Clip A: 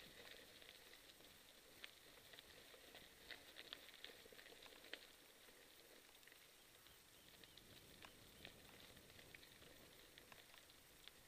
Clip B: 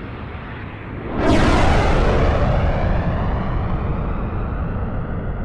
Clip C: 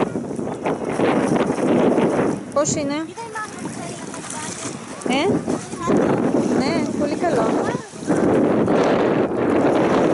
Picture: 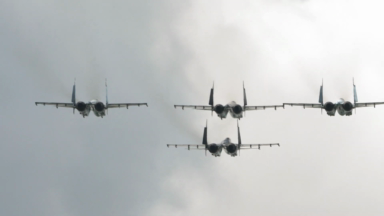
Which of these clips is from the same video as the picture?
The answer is B